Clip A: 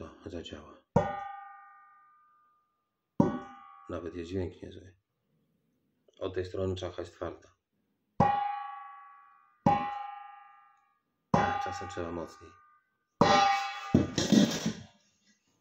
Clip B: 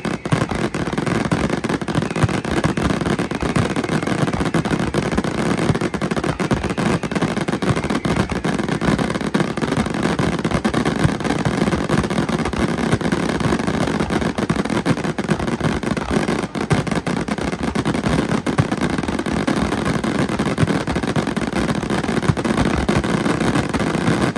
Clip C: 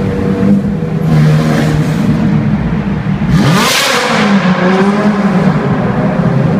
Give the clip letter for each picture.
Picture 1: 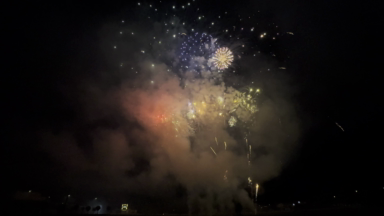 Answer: B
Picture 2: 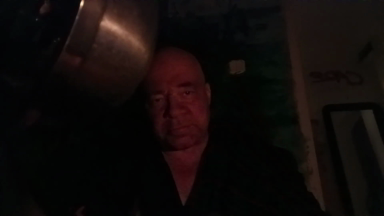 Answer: A